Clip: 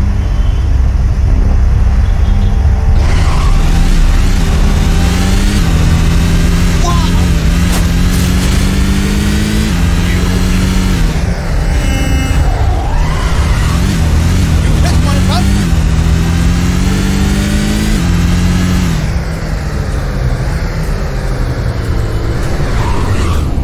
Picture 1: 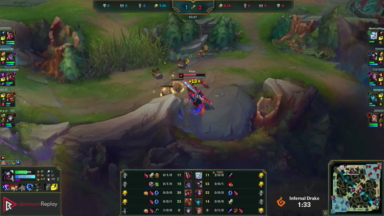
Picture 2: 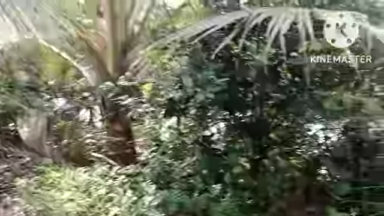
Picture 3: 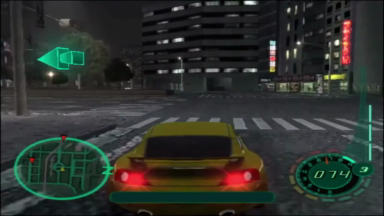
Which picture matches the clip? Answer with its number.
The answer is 3